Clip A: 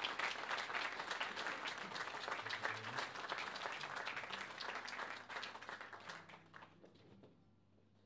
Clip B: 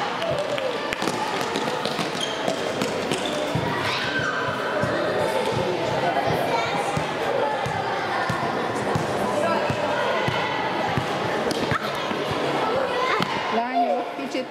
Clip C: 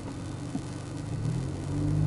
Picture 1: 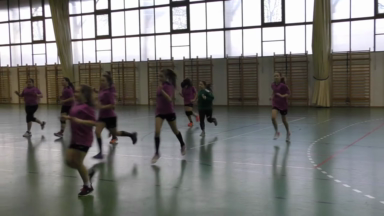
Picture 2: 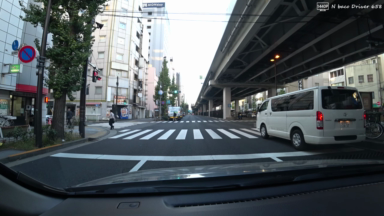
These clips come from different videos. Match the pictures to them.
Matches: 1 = B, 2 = C